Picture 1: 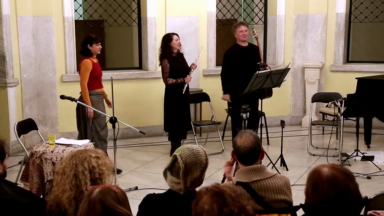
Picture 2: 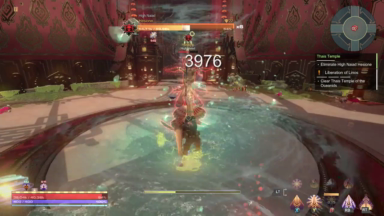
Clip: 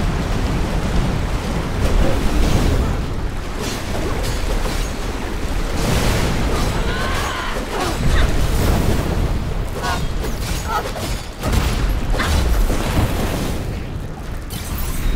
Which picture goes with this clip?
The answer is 2